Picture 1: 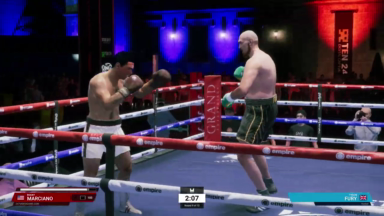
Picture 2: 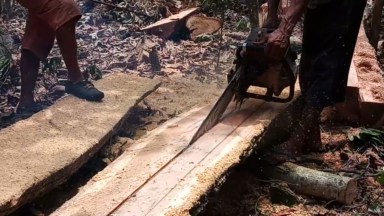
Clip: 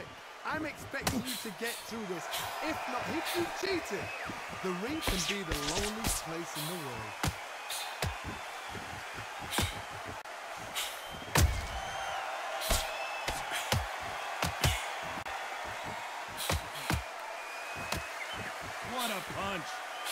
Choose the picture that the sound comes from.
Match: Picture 1